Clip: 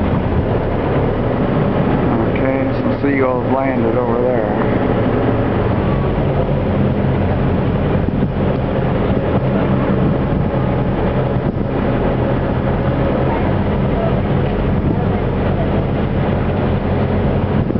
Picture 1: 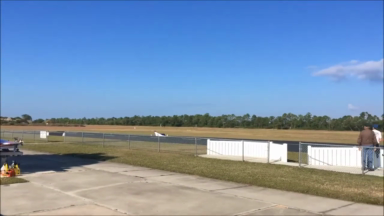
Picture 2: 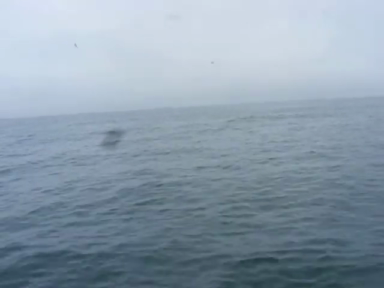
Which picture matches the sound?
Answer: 2